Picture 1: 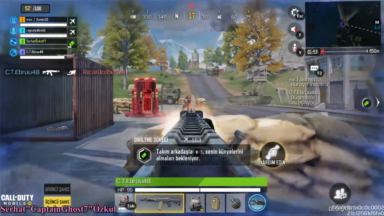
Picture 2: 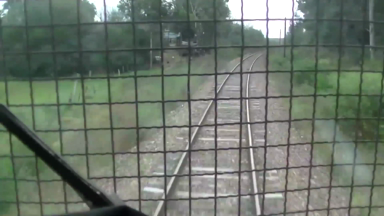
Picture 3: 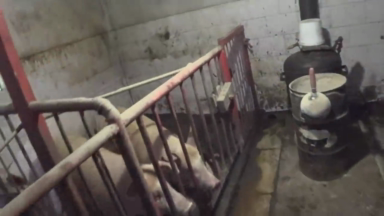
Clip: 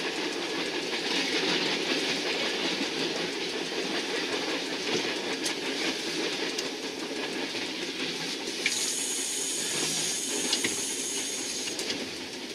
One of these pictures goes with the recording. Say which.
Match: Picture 2